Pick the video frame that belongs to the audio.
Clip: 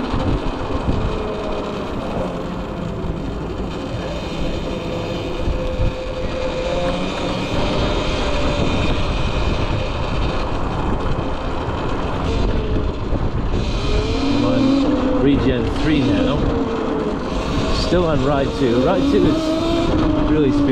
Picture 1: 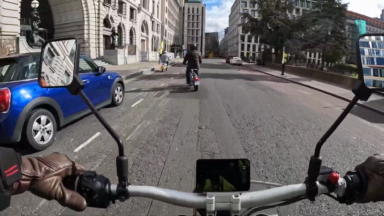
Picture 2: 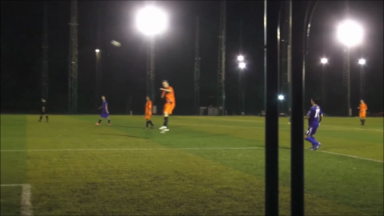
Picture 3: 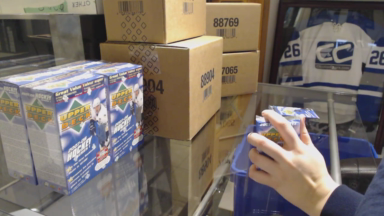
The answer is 1